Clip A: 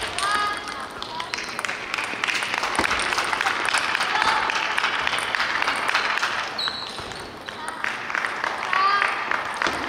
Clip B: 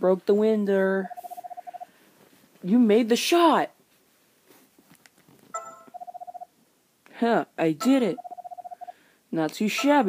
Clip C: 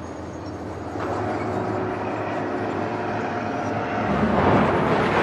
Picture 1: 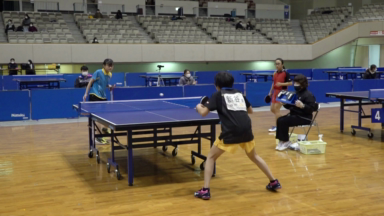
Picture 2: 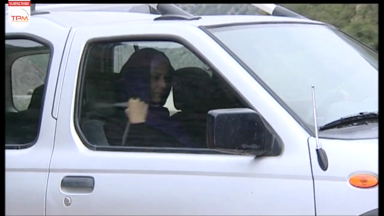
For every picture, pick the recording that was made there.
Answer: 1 A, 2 C